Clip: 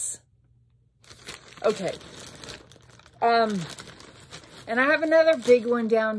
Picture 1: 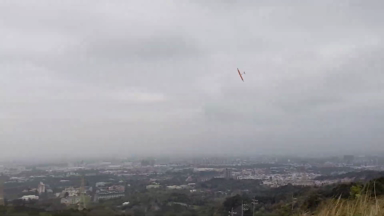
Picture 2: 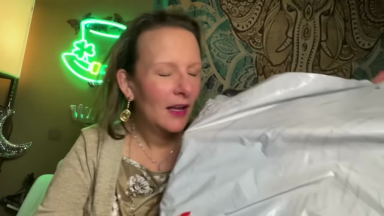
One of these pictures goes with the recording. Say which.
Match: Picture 2